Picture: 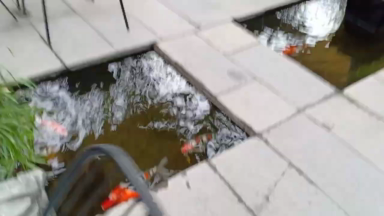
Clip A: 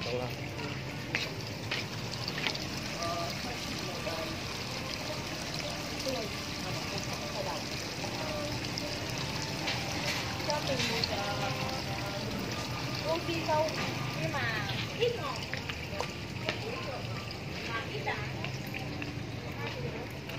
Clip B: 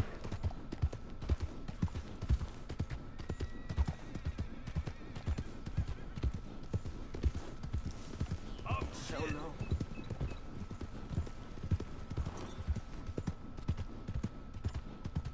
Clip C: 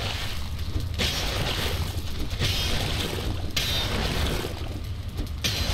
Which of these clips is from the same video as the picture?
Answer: A